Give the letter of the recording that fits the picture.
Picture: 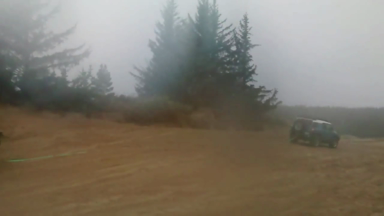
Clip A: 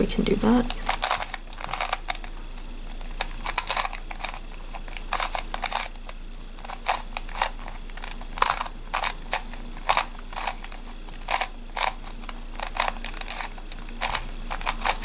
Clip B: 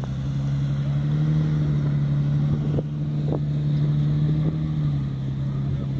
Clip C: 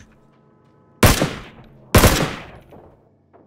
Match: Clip B